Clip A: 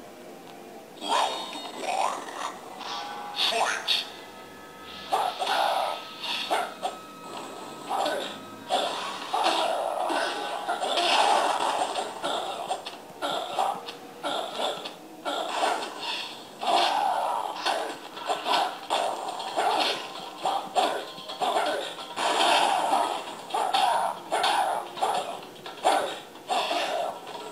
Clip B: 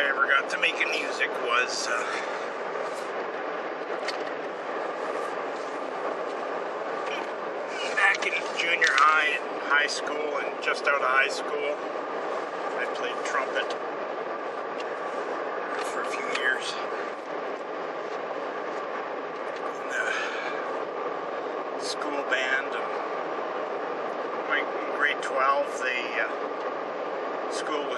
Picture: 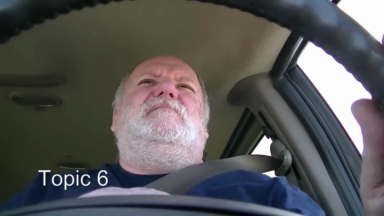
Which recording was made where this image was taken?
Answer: B